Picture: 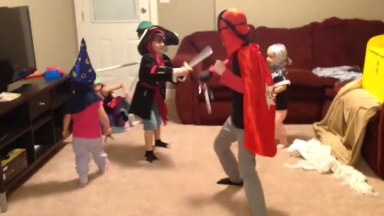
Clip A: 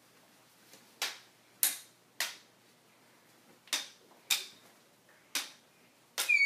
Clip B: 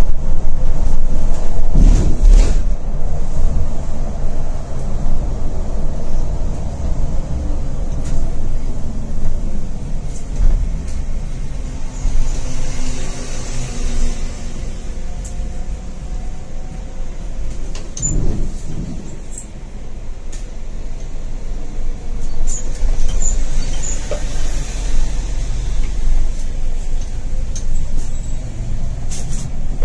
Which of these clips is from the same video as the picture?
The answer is A